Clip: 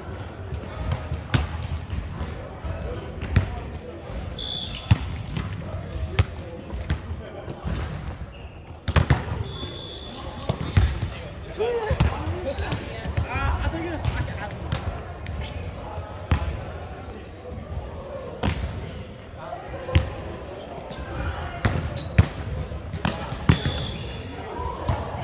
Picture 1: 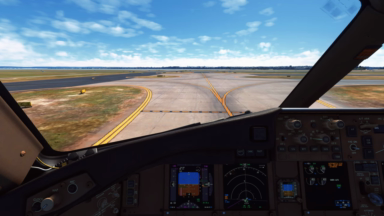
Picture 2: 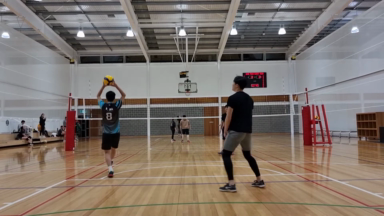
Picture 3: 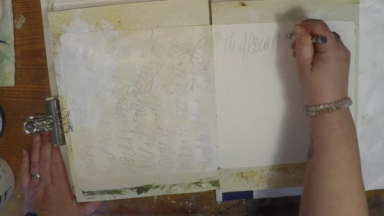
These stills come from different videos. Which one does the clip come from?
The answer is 2